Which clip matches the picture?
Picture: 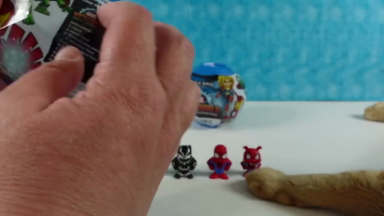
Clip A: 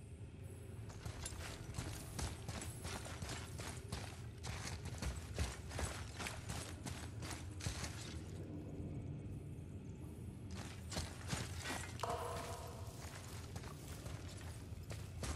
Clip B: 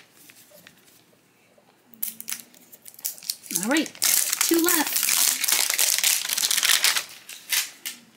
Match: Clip B